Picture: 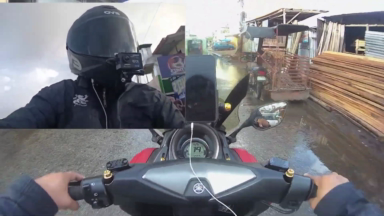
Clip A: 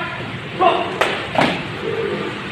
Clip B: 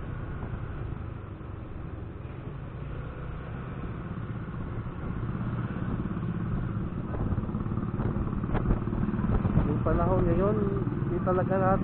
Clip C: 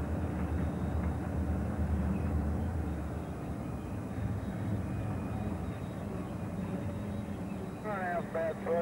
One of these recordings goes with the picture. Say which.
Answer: B